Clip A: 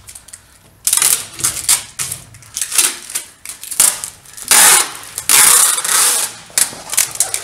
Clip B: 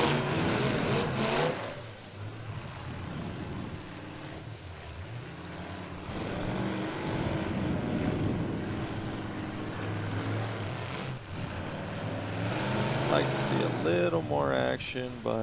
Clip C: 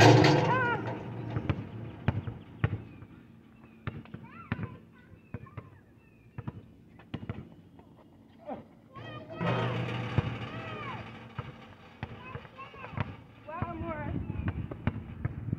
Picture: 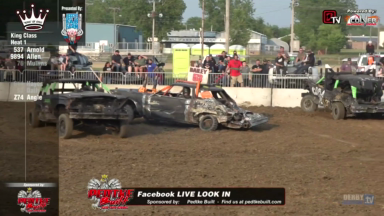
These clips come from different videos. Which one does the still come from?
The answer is B